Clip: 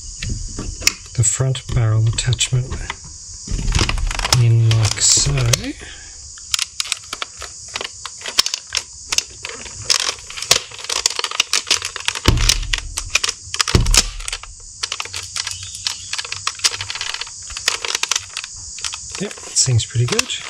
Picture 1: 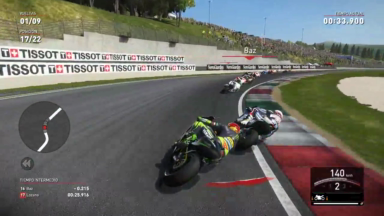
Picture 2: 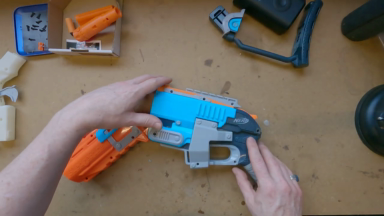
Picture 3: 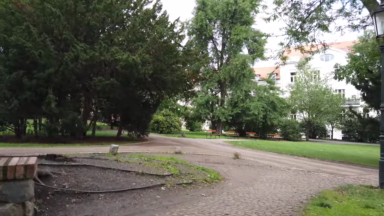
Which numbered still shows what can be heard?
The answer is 2